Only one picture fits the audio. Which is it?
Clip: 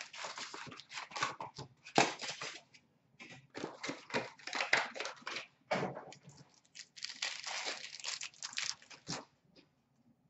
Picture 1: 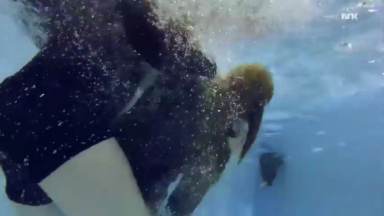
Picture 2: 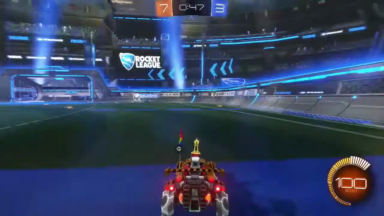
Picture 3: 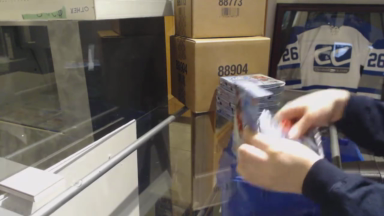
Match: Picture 3